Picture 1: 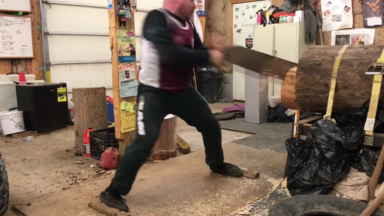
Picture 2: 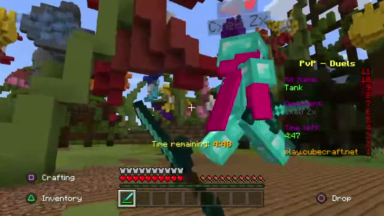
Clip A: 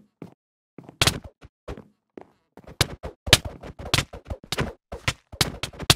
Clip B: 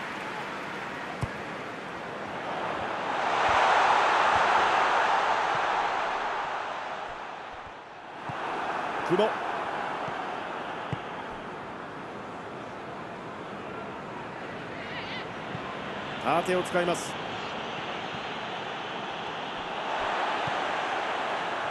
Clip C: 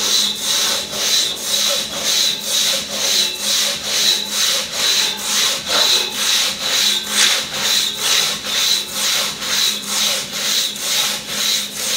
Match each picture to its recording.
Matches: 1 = C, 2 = A